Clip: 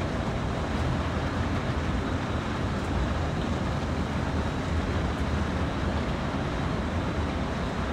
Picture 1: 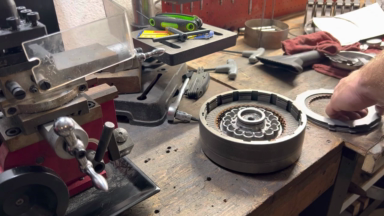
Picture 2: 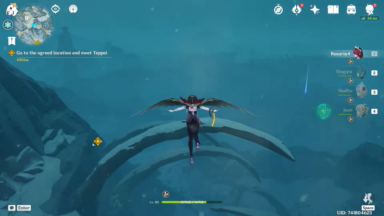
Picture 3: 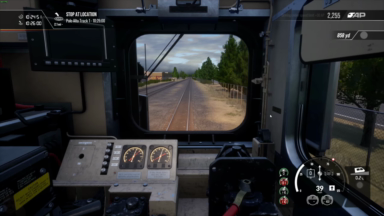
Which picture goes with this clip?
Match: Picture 3